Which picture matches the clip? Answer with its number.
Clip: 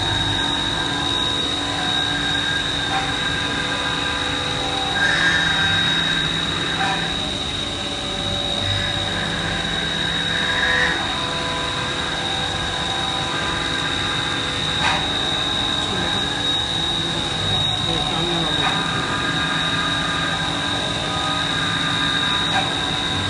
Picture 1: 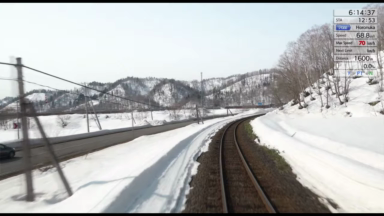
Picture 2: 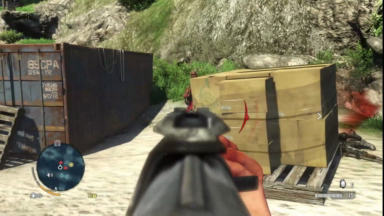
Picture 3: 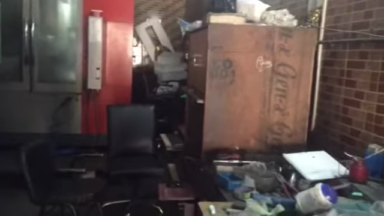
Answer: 3